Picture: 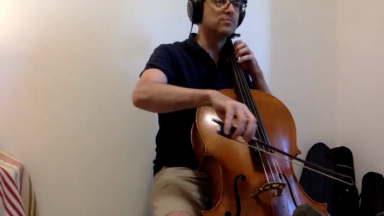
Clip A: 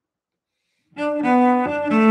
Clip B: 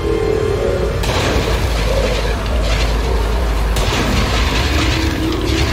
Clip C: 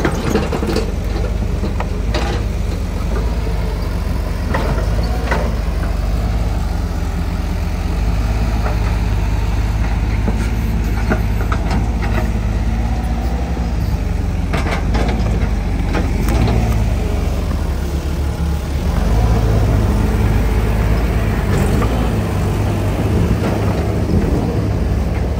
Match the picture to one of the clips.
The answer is A